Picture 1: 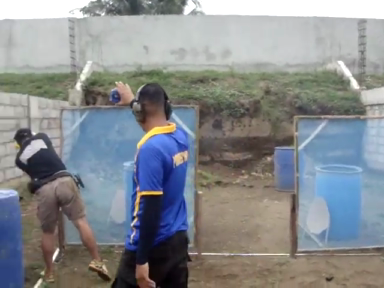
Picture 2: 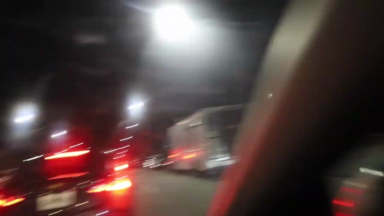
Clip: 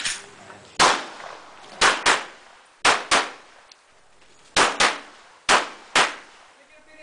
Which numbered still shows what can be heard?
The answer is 1